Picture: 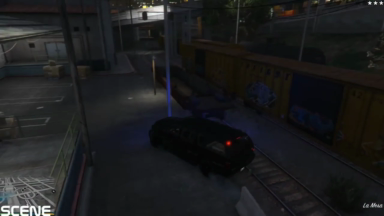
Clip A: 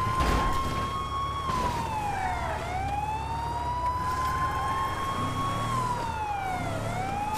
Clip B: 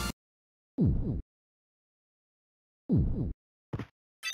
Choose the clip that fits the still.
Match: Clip A